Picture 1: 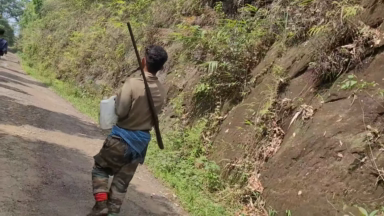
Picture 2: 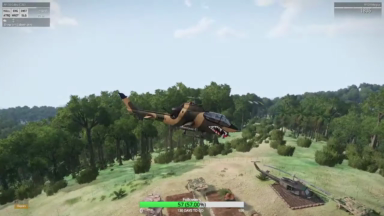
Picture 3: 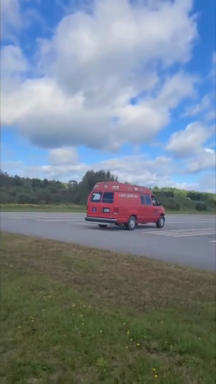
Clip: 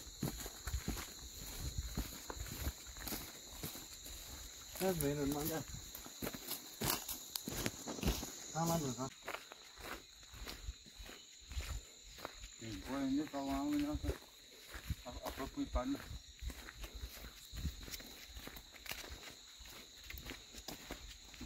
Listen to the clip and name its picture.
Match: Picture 1